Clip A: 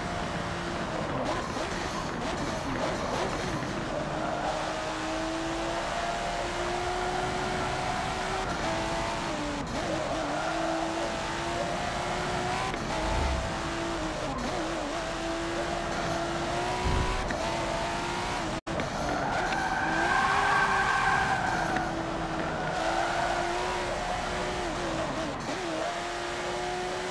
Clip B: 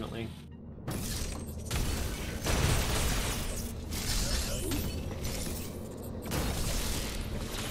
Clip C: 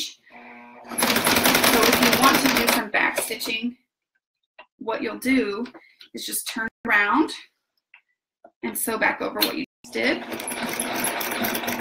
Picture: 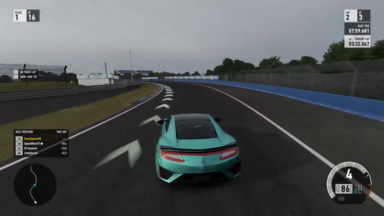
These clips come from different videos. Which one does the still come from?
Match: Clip A